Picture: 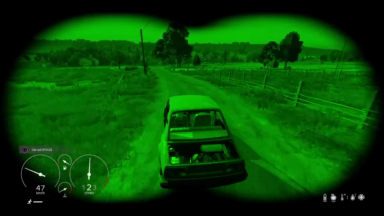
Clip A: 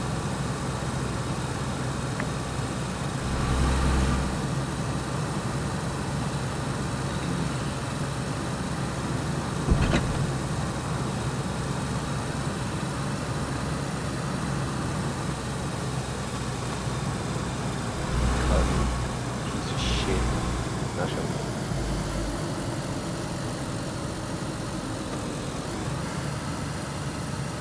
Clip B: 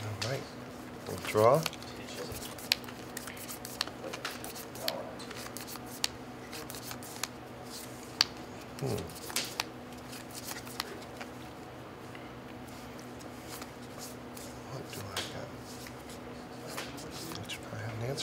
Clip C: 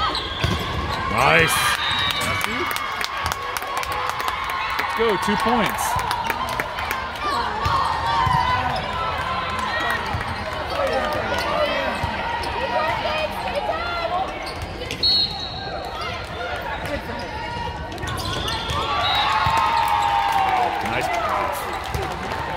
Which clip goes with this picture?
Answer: A